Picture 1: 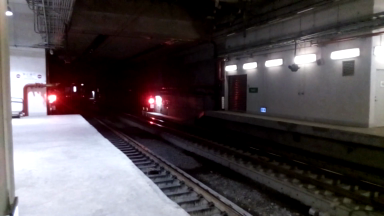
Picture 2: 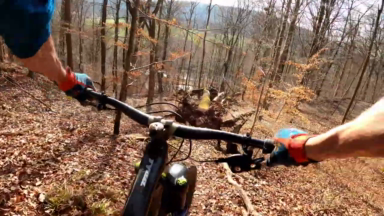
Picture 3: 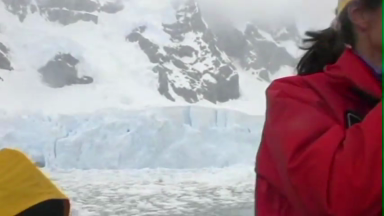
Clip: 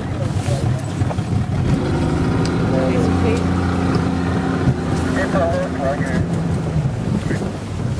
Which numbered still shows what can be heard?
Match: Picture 3